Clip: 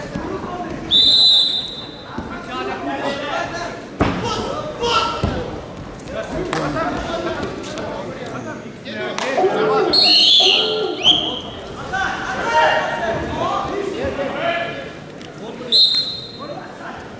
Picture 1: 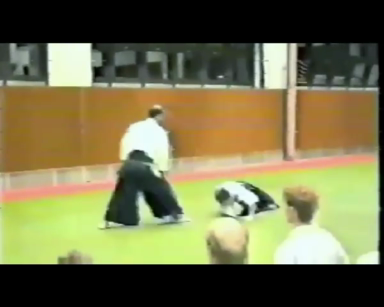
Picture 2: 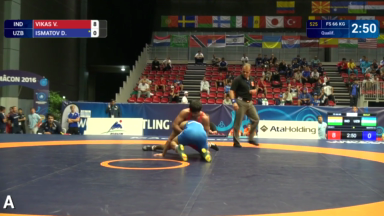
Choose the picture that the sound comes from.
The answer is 2